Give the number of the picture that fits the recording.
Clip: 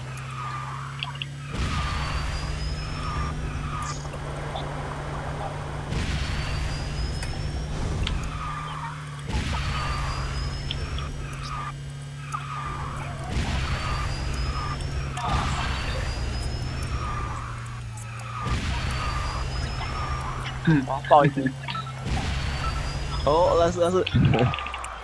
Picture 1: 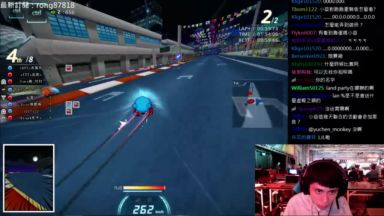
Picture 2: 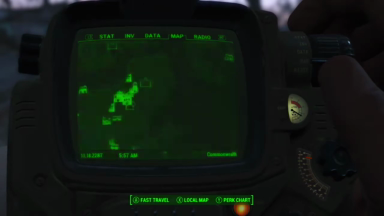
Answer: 1